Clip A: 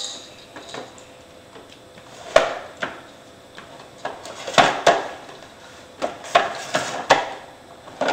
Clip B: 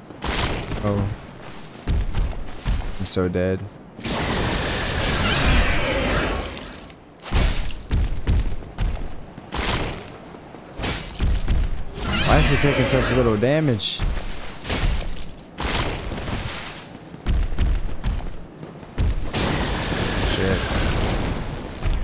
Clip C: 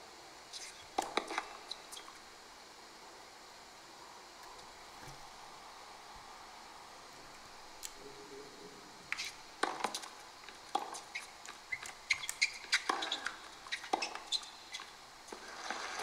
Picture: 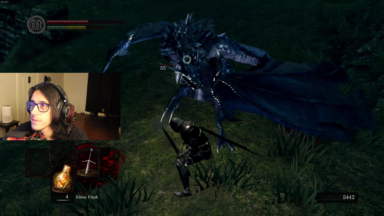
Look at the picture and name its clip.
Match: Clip B